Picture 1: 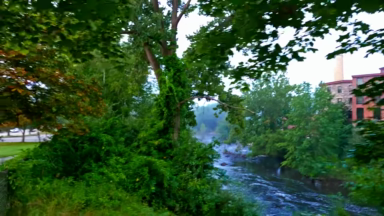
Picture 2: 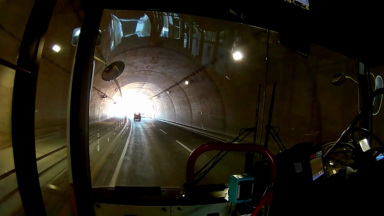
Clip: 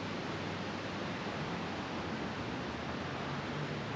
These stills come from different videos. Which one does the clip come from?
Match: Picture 1